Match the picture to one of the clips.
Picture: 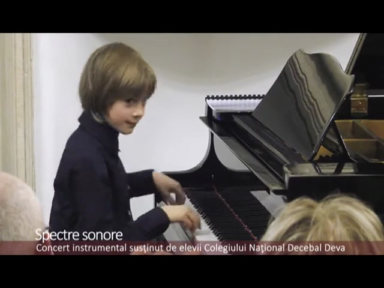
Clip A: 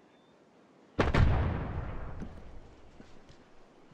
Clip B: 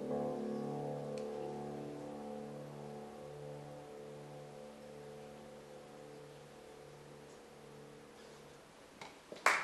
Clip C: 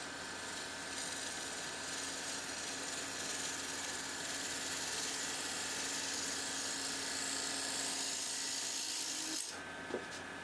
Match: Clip B